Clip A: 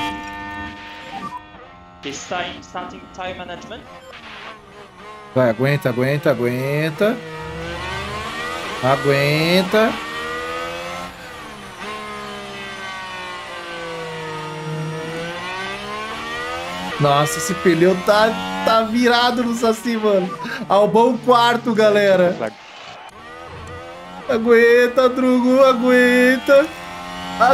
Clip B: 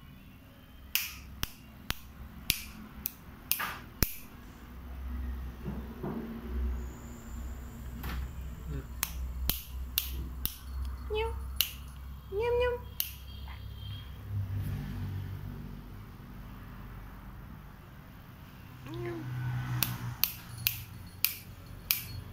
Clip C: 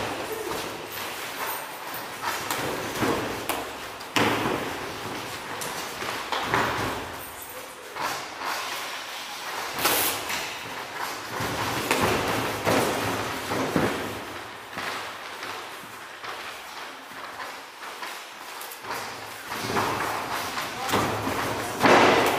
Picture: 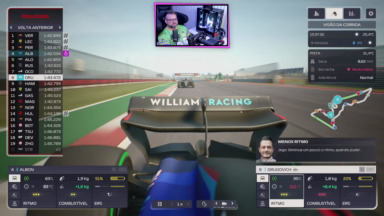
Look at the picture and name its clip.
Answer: A